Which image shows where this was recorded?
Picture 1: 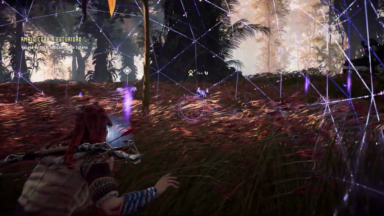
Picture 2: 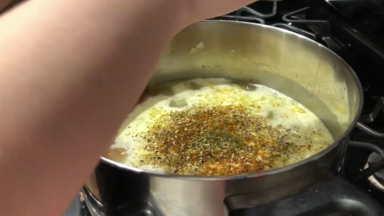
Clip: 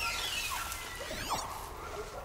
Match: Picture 1